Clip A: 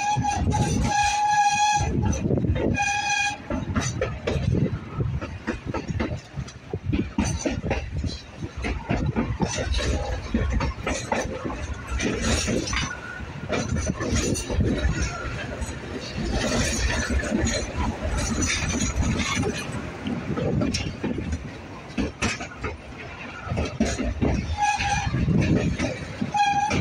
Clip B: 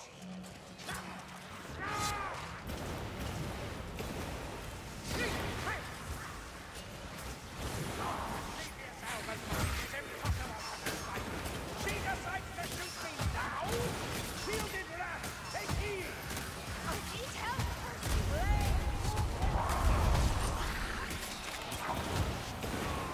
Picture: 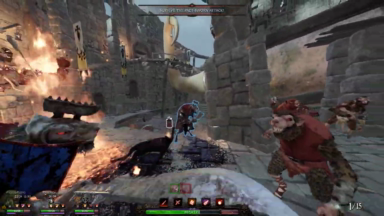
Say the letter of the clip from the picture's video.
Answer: B